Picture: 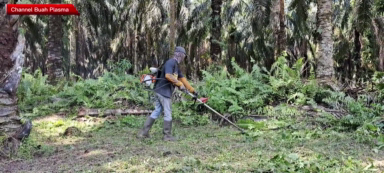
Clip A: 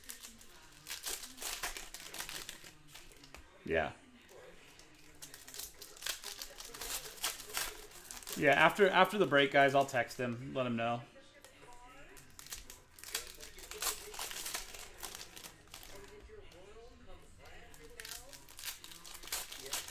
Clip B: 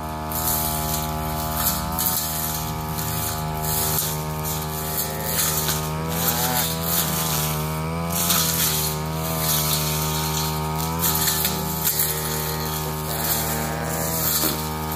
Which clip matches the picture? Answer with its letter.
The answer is B